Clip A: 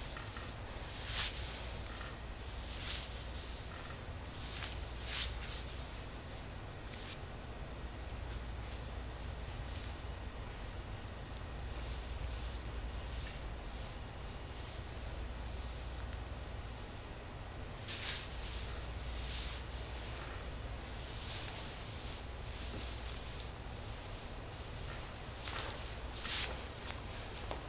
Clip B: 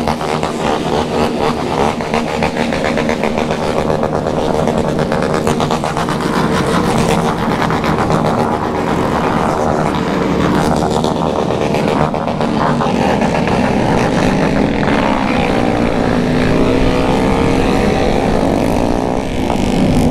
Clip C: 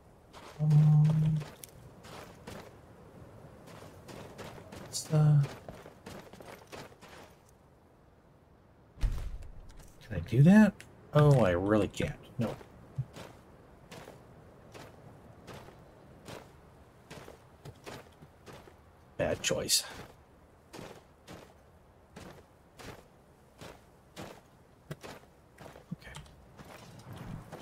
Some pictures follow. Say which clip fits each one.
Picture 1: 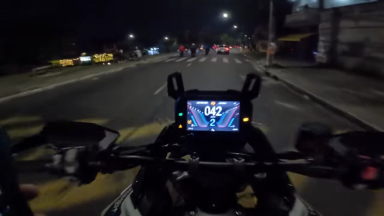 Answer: B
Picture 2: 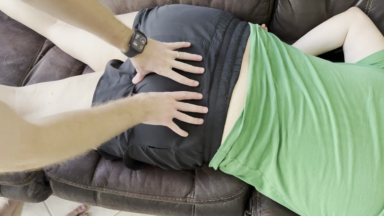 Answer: A